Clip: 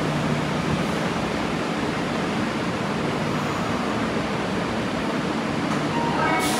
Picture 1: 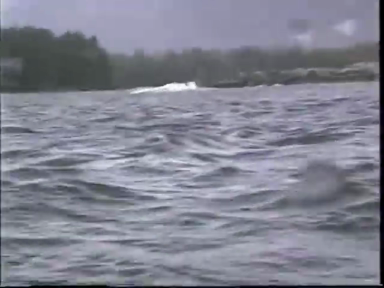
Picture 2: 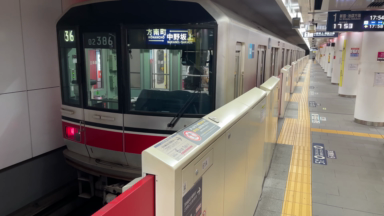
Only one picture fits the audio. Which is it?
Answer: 2